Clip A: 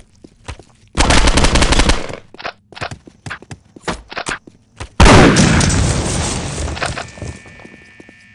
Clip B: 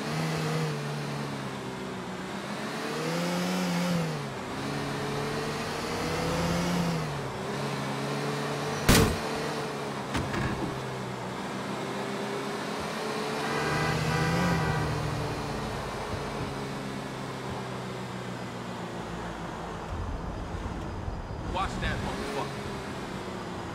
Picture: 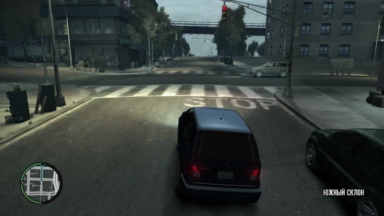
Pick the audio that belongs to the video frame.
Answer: B